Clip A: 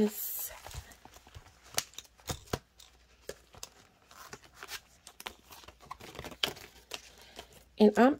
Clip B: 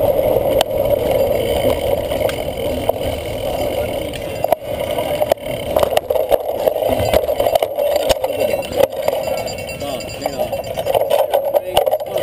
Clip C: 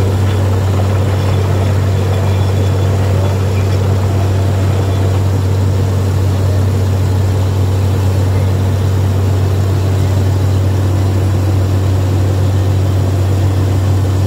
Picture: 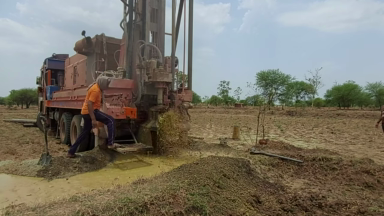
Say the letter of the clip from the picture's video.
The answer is C